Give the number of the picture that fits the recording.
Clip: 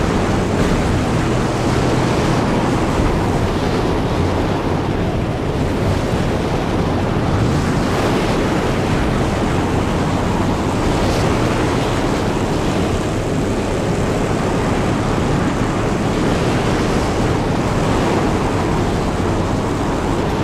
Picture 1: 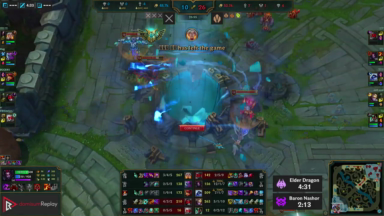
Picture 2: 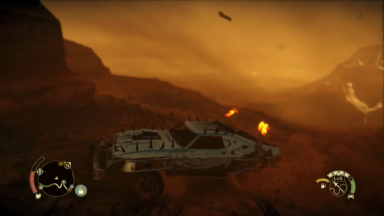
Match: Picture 2